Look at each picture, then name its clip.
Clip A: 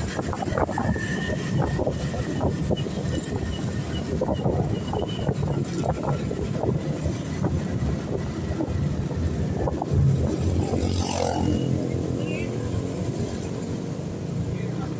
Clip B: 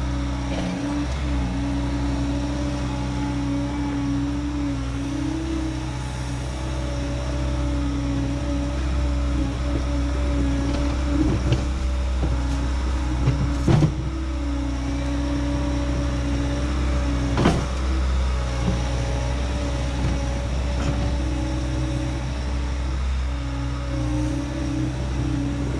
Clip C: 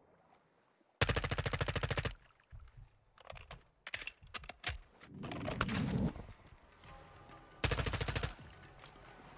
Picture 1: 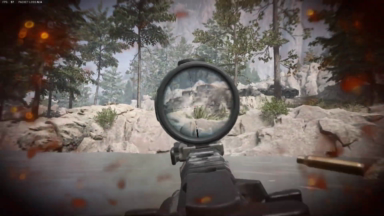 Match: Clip C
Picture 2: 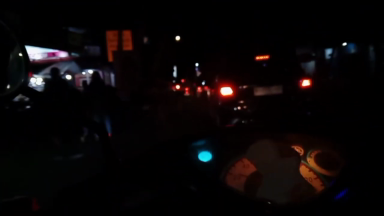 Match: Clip A